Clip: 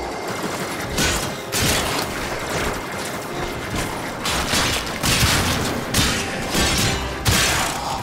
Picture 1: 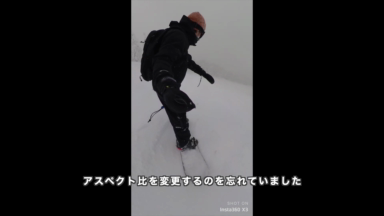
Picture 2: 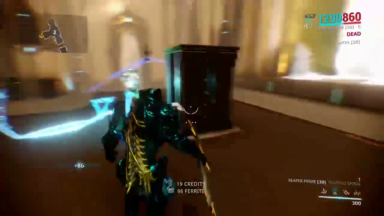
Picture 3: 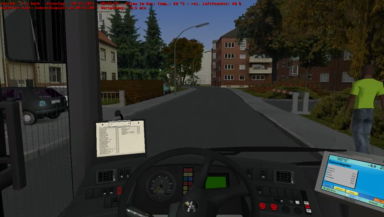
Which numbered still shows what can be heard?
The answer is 2